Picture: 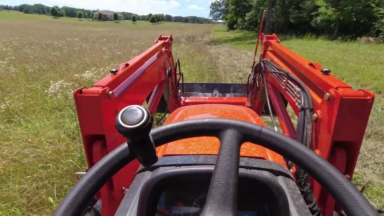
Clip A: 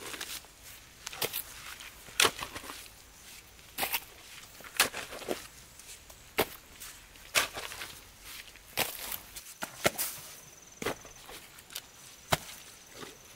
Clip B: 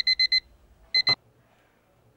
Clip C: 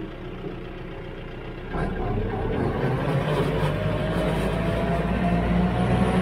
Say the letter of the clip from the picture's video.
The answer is C